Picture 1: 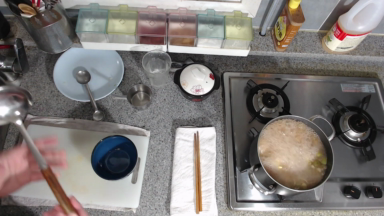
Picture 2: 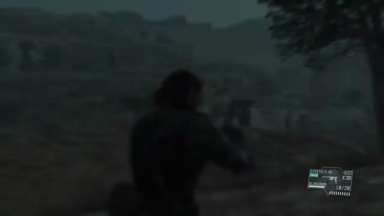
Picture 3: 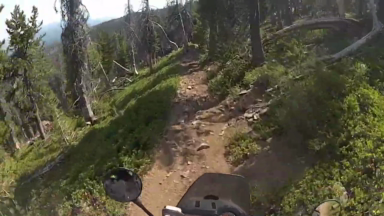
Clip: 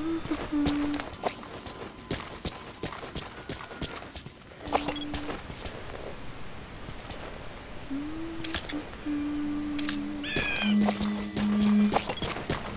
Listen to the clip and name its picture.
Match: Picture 2